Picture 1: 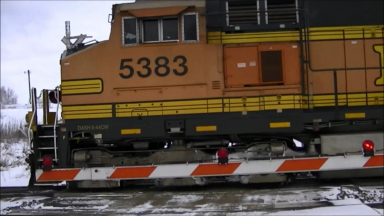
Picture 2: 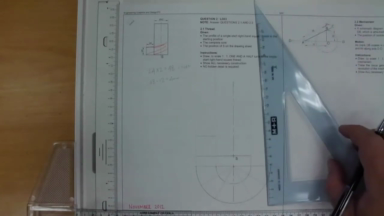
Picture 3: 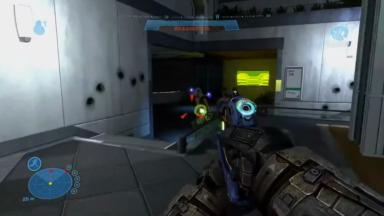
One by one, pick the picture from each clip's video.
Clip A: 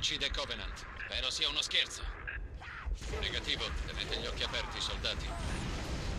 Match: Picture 3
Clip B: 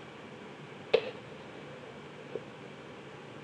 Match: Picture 2